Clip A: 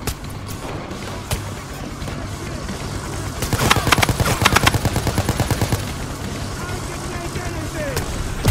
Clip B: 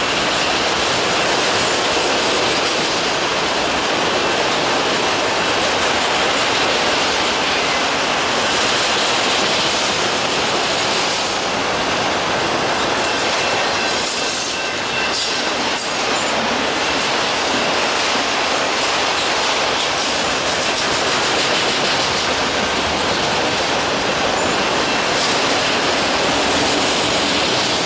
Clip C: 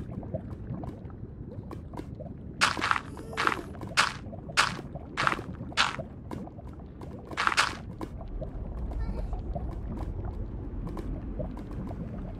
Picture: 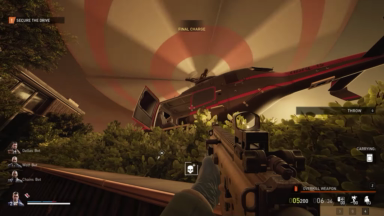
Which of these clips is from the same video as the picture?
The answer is A